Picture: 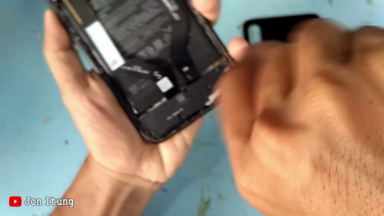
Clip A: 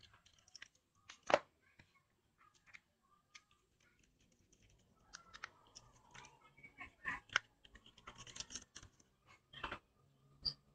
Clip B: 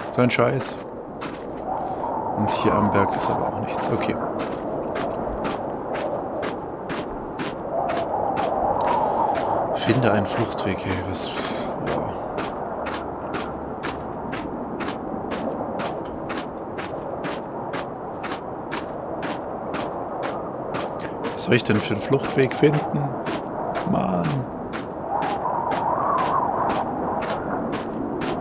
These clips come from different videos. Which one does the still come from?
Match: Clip A